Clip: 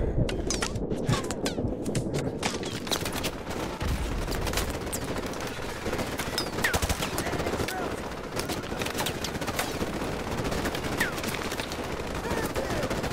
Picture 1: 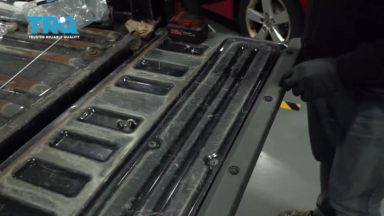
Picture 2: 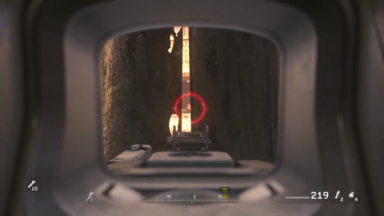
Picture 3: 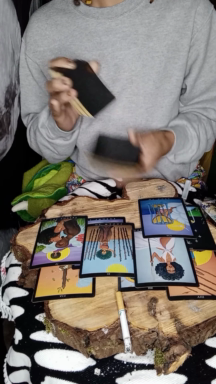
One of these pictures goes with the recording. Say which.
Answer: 2